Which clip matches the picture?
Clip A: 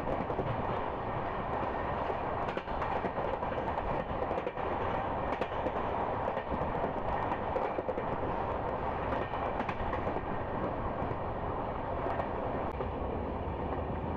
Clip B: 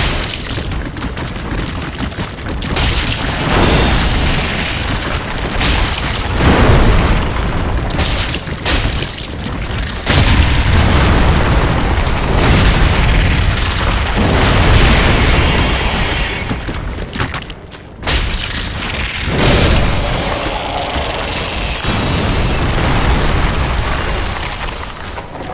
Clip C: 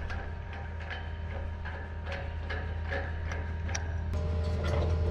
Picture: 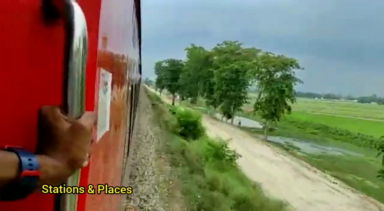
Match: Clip A